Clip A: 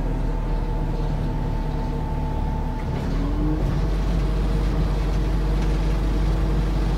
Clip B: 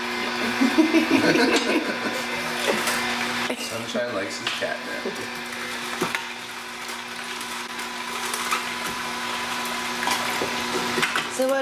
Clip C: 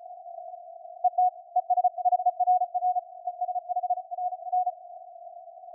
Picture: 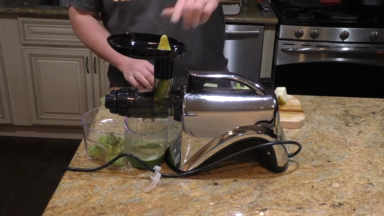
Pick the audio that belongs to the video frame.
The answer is B